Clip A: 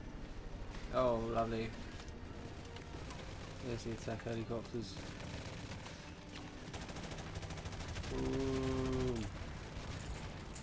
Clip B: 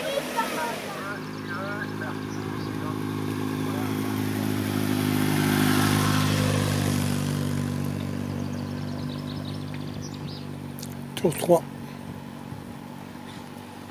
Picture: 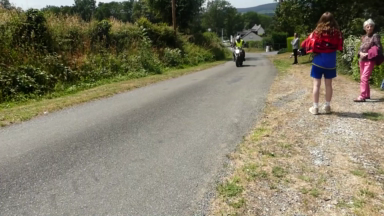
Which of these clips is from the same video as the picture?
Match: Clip B